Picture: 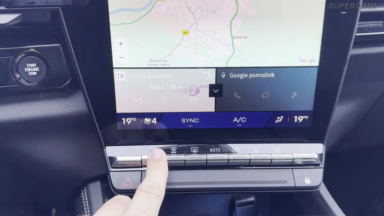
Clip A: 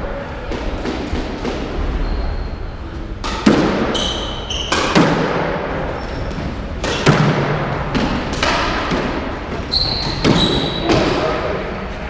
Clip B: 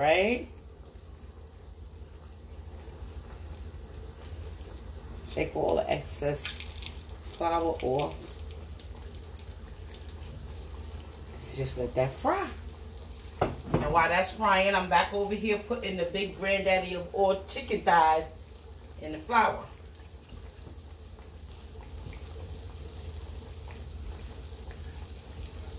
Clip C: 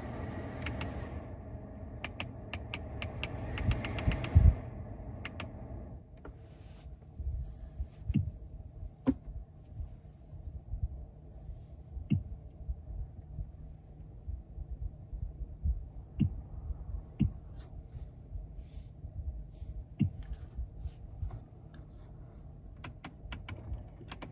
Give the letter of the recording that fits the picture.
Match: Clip C